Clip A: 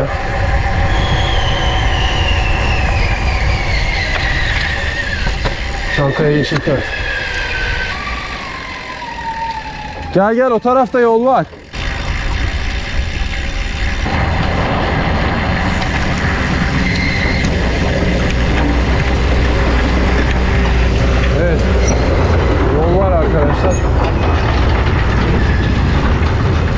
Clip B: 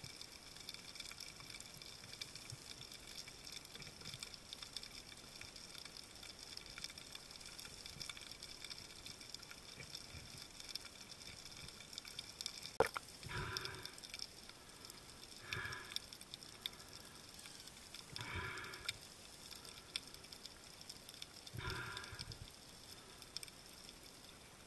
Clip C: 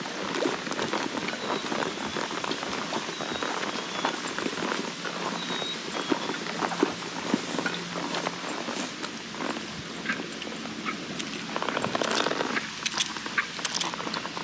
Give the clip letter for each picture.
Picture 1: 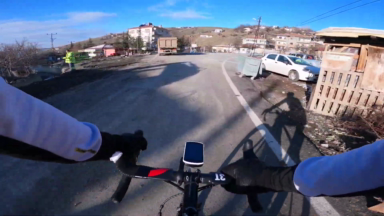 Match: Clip A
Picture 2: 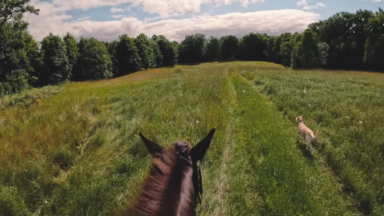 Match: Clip C